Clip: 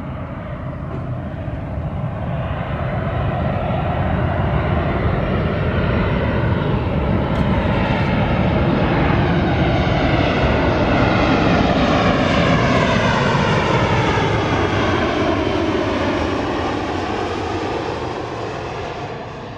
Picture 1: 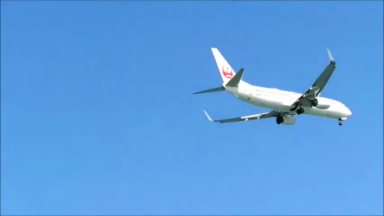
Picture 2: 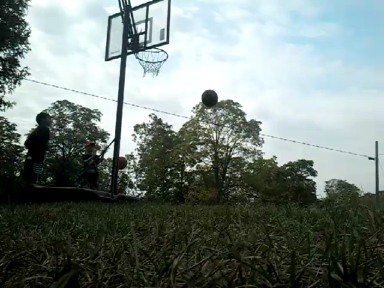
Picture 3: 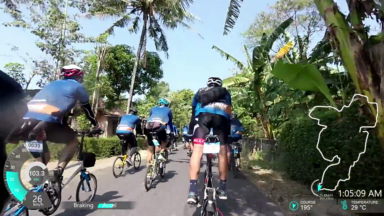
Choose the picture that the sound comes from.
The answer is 1